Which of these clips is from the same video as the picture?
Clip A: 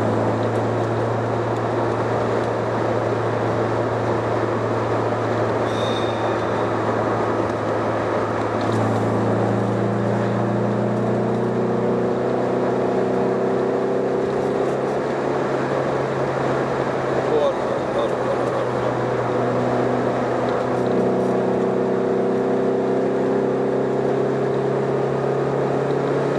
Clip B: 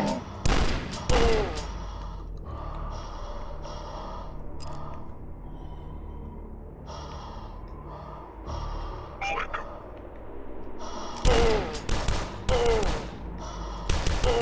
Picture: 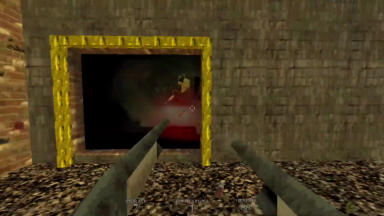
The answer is B